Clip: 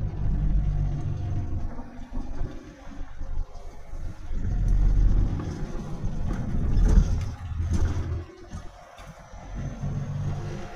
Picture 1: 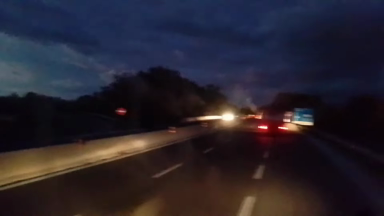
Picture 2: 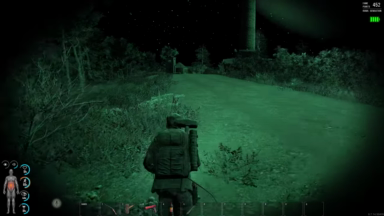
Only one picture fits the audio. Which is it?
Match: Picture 1